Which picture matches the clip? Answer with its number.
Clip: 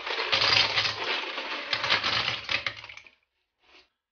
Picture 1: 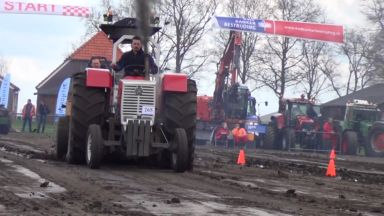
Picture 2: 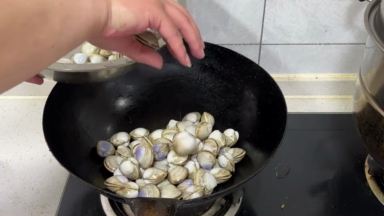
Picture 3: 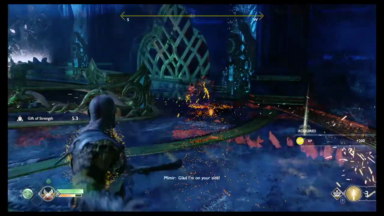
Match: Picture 2